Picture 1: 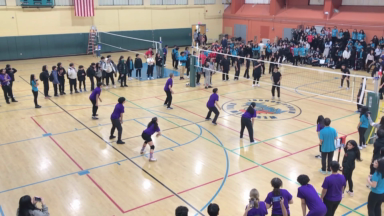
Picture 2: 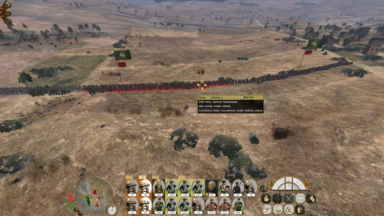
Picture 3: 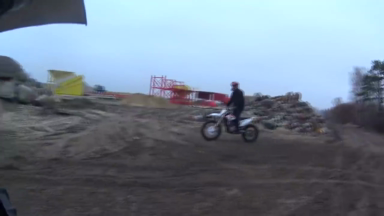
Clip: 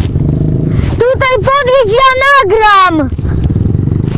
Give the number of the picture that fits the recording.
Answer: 3